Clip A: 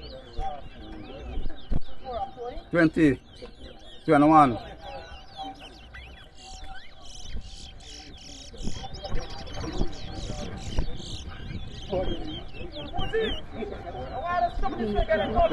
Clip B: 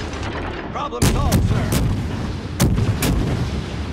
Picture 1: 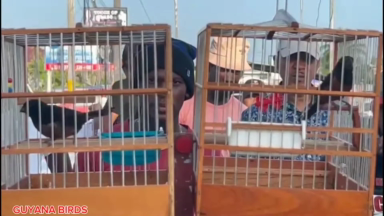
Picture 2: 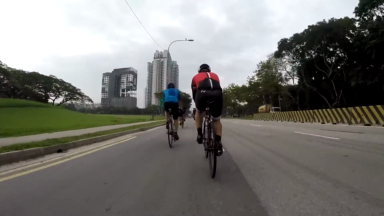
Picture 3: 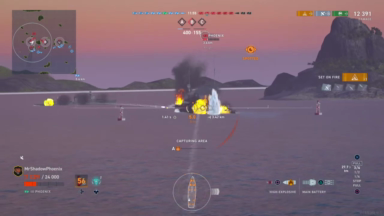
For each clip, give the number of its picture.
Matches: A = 1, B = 3